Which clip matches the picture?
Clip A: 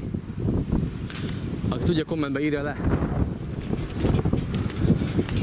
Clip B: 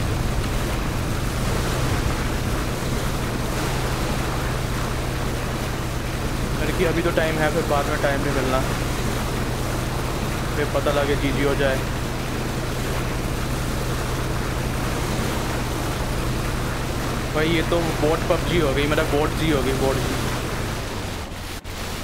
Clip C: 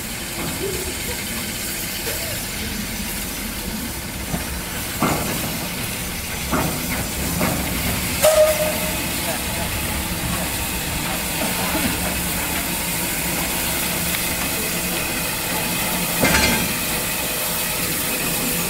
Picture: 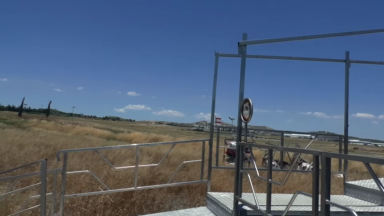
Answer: A